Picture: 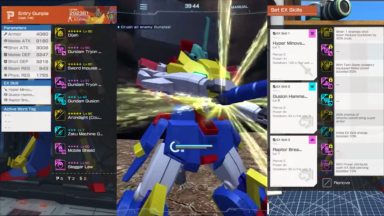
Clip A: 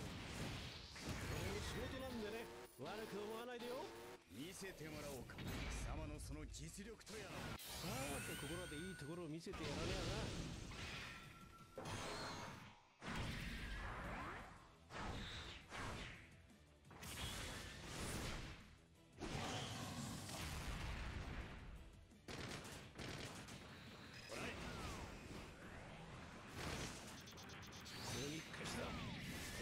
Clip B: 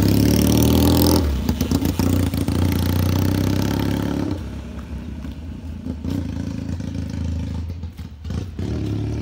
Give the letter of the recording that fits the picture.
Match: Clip A